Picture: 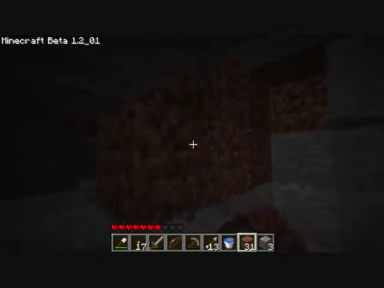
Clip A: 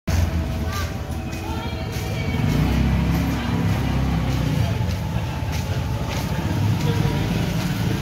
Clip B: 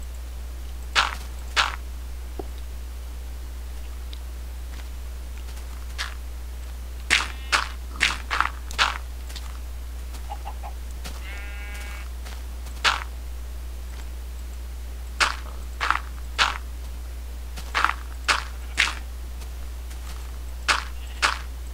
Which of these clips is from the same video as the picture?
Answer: B